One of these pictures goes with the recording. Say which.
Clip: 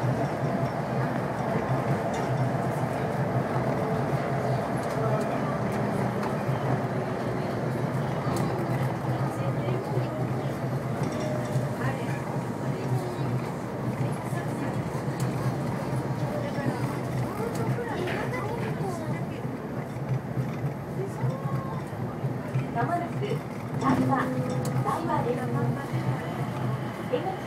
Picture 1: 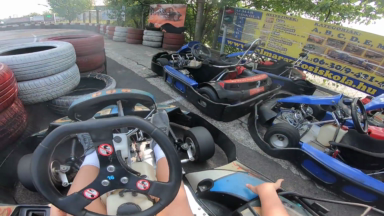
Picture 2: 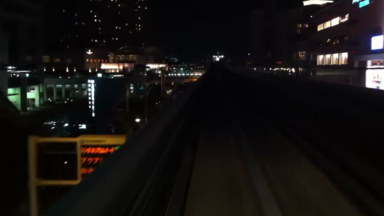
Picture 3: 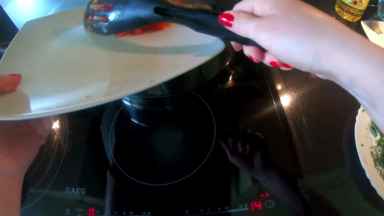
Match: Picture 2